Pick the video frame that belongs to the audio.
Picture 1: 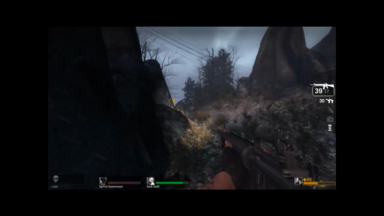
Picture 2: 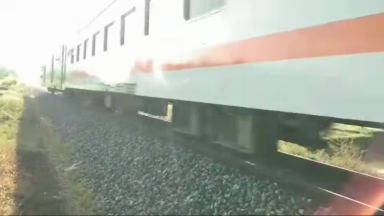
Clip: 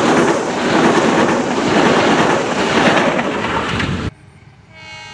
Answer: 2